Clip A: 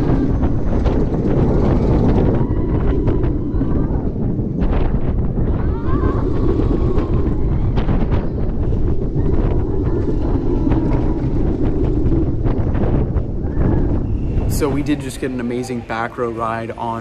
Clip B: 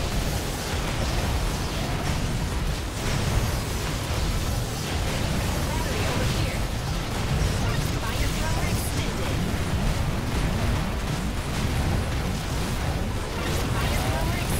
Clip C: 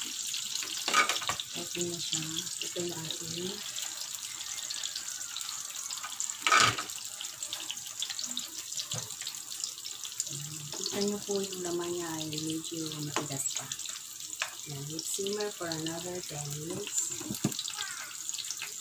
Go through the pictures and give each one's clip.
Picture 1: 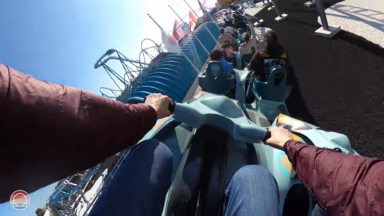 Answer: A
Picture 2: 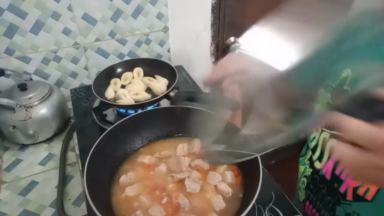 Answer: C